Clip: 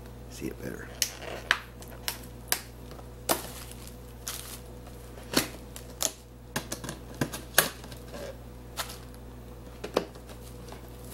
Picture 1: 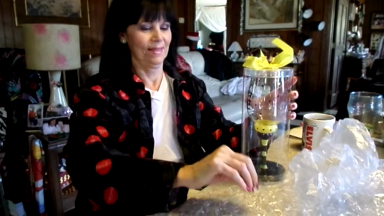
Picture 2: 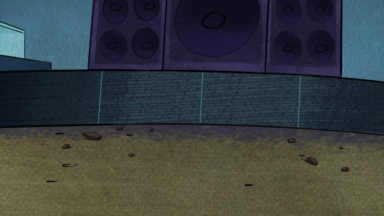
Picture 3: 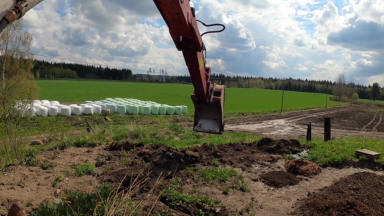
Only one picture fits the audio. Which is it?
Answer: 1